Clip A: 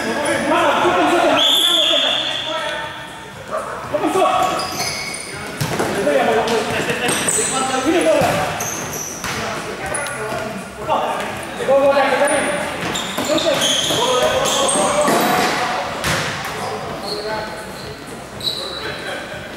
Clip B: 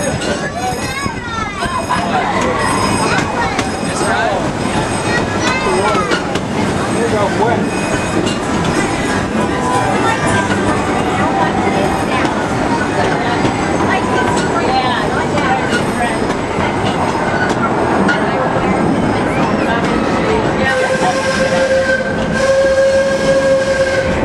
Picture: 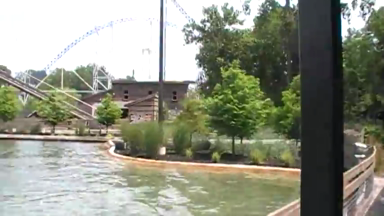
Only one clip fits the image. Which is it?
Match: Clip B